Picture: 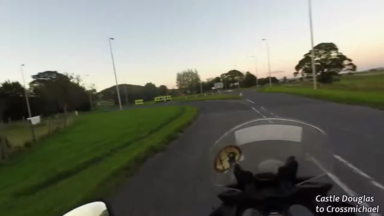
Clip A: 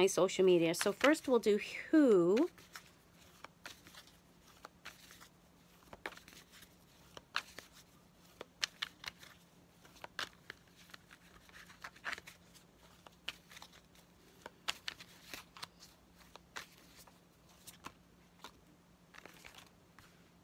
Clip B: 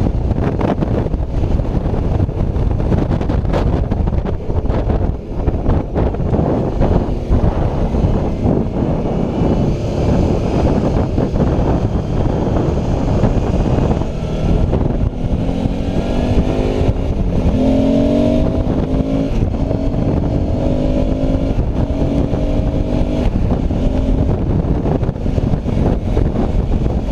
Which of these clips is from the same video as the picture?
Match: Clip B